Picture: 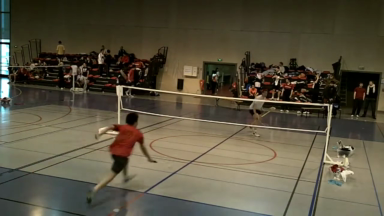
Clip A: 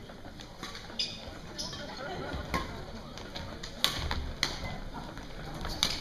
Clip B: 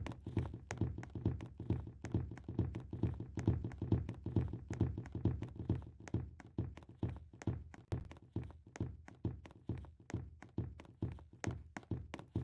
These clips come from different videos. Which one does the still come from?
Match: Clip A